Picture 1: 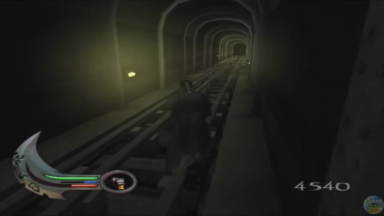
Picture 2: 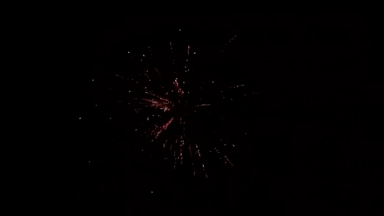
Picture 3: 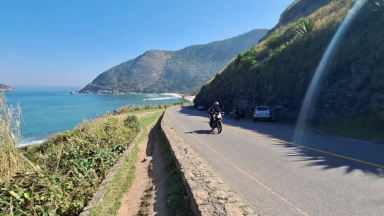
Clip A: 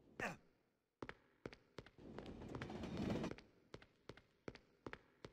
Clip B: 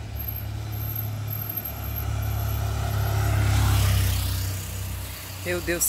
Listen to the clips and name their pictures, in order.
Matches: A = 1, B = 3